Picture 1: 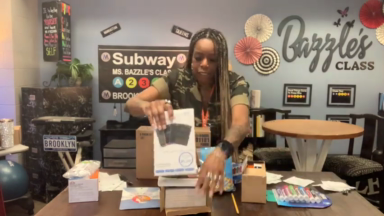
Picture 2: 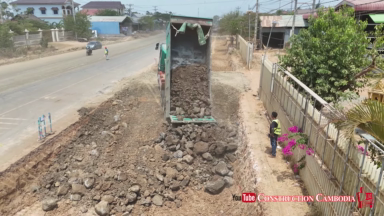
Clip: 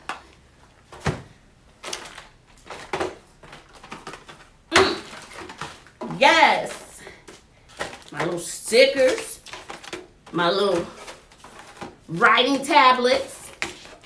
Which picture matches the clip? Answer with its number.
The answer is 1